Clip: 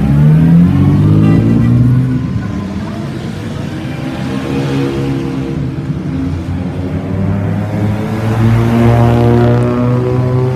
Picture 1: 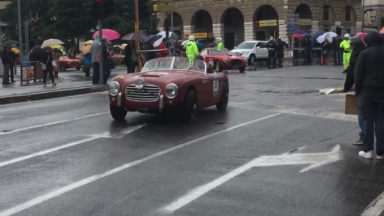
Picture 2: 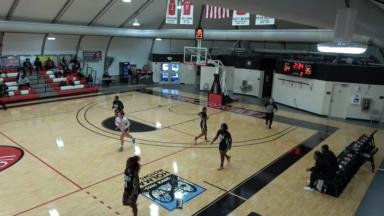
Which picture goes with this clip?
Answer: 1